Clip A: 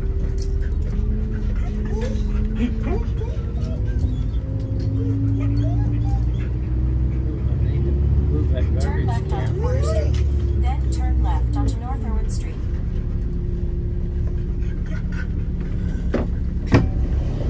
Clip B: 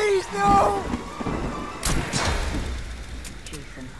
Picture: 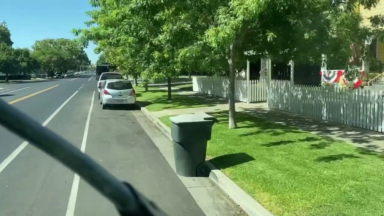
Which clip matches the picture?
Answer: A